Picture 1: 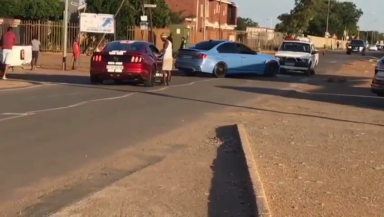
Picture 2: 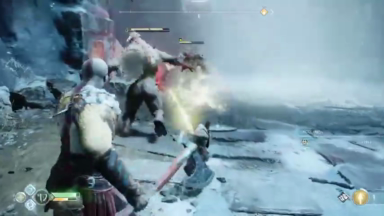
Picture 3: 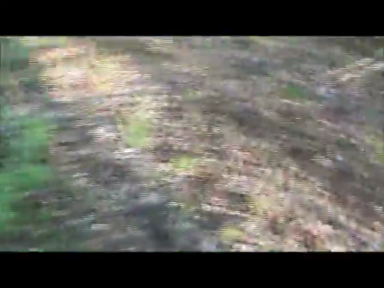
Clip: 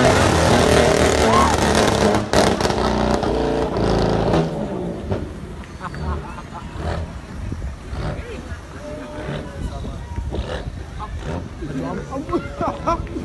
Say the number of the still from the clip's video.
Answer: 1